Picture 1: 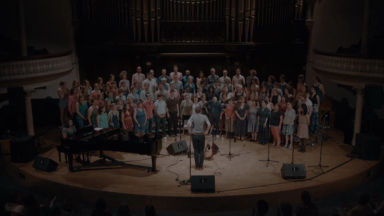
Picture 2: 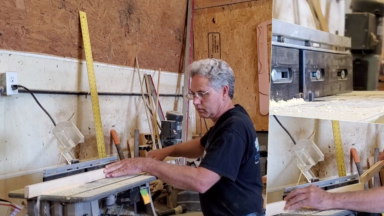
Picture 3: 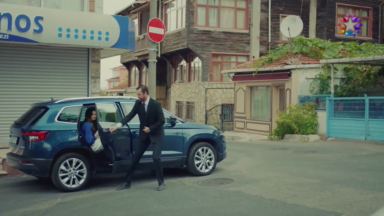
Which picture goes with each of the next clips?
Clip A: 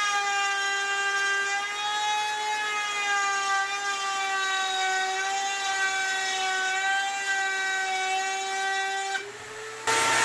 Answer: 2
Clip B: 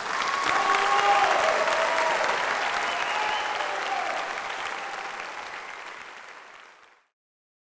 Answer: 1